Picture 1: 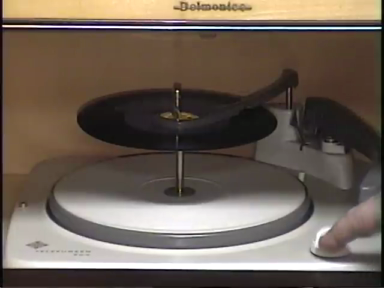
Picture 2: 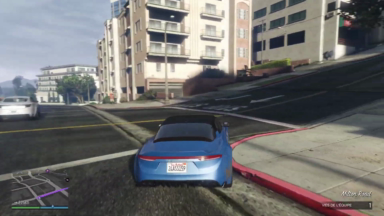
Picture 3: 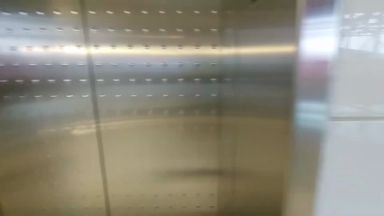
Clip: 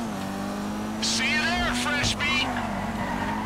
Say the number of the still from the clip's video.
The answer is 2